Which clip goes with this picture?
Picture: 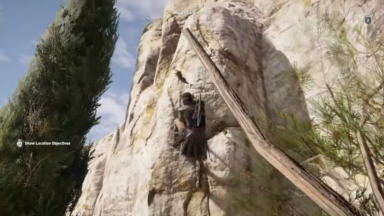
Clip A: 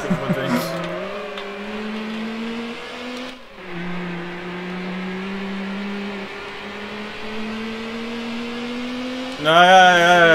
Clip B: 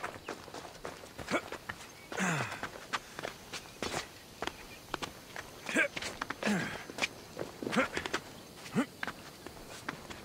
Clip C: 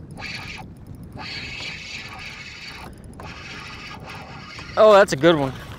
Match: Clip B